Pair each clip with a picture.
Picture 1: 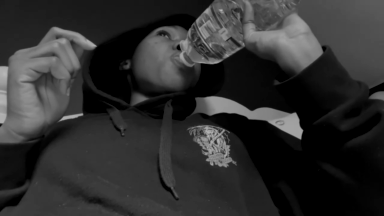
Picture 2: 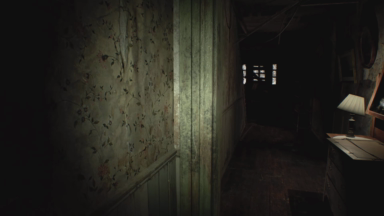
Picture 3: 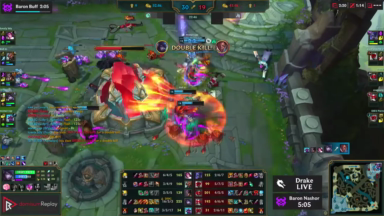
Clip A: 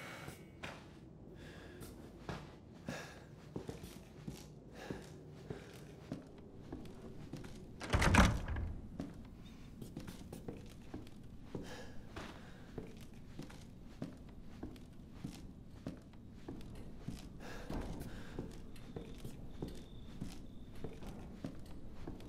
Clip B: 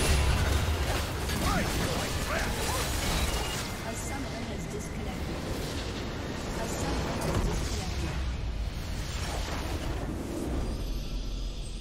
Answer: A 2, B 3